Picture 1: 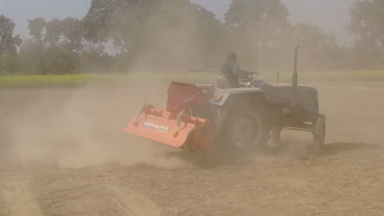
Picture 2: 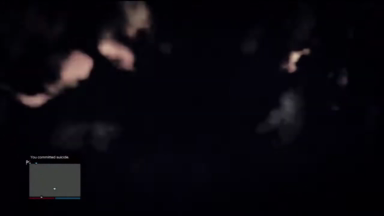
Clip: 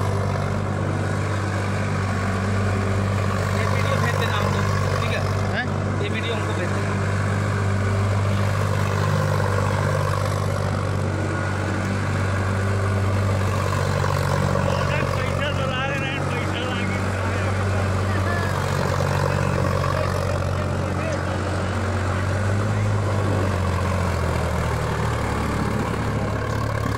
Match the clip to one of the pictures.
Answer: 1